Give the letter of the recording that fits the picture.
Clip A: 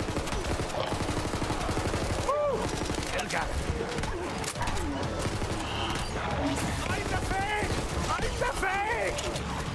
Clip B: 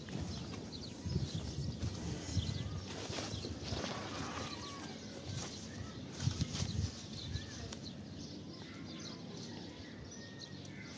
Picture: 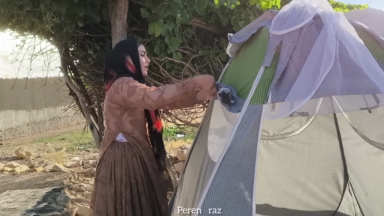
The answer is B